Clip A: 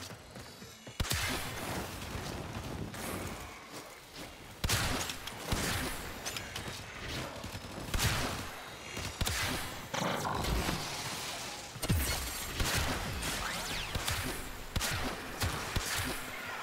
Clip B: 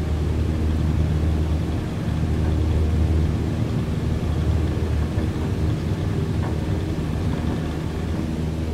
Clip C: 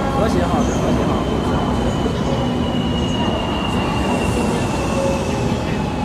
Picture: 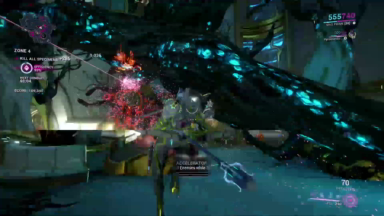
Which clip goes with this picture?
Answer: A